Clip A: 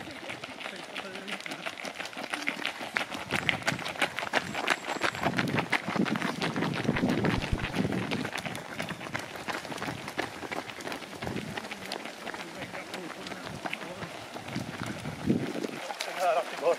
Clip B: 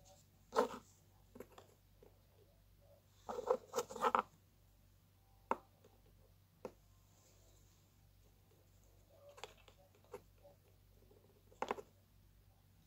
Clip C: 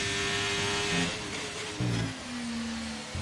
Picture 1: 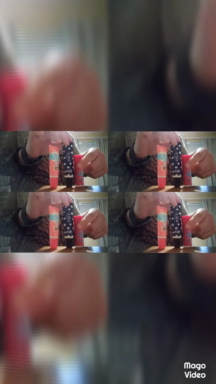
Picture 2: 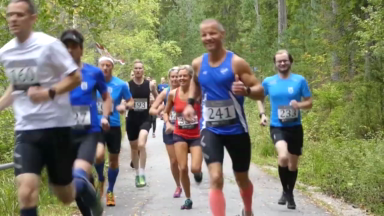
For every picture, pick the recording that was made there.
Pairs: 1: B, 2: A